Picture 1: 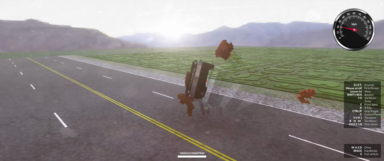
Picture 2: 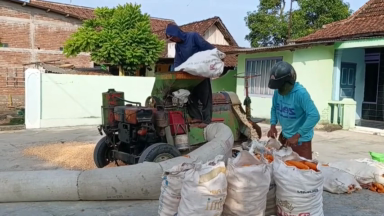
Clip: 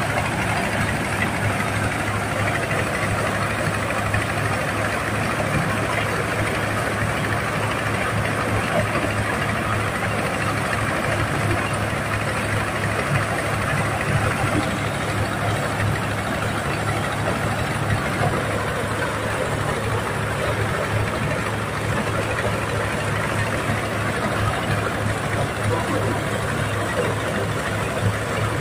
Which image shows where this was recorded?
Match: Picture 2